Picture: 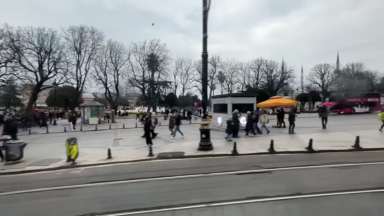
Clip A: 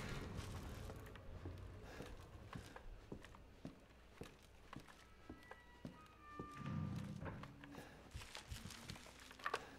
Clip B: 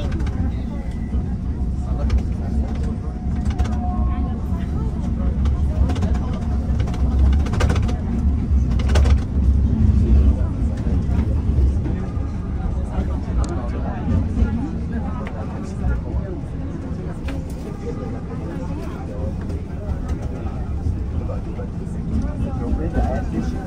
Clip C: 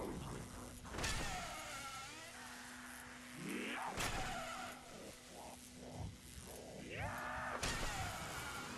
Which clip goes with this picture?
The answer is B